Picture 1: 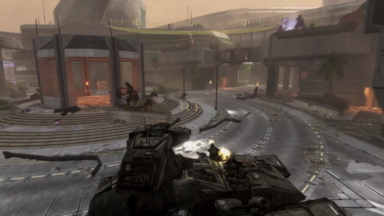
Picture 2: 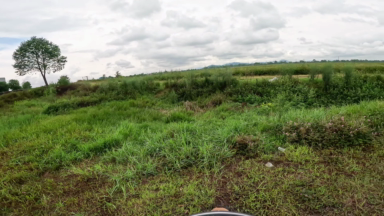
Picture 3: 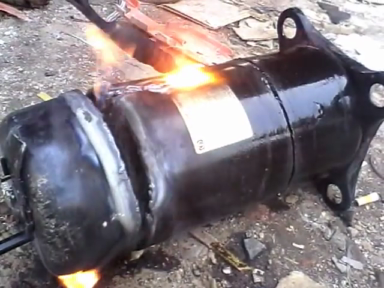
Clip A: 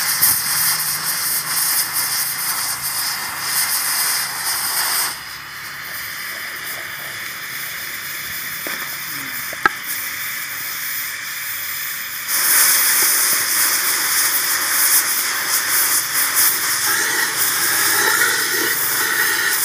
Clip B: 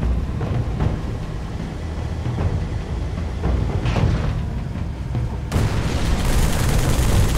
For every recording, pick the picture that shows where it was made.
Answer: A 3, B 1